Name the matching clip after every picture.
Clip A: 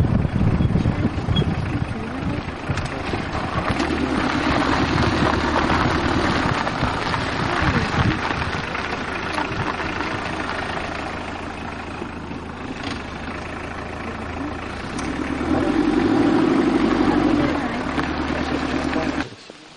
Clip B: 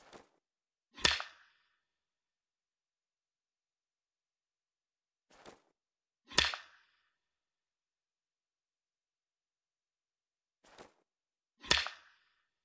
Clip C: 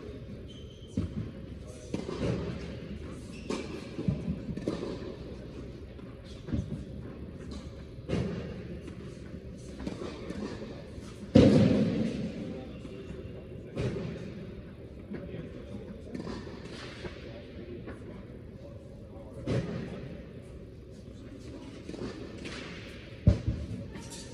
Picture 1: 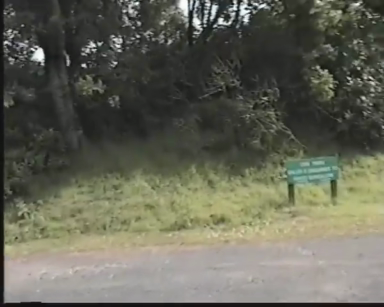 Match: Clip A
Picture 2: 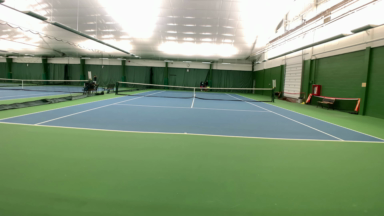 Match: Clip C